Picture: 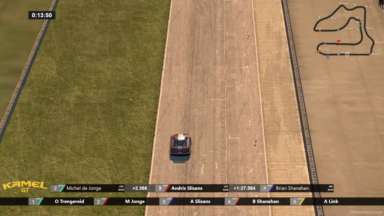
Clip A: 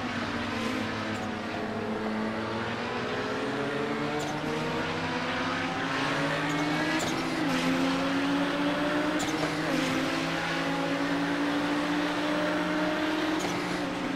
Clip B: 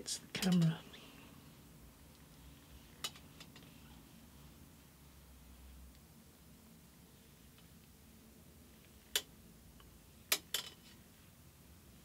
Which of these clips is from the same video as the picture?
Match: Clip A